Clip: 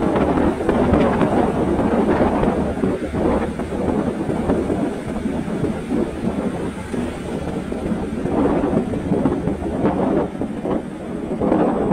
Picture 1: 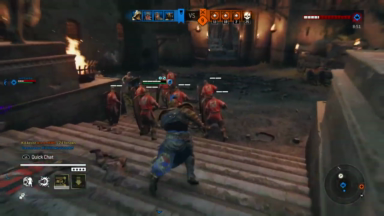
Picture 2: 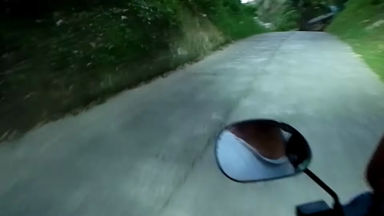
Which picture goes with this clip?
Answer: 2